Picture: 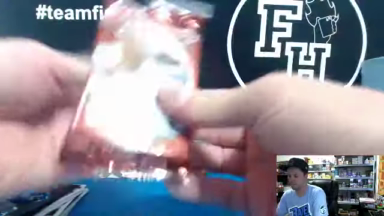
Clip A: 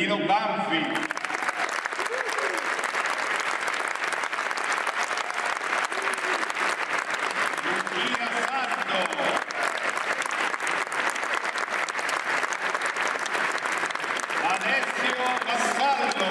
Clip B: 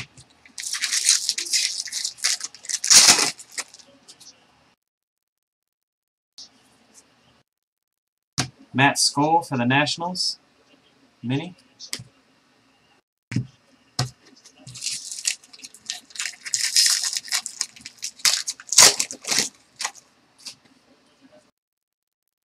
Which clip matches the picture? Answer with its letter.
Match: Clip B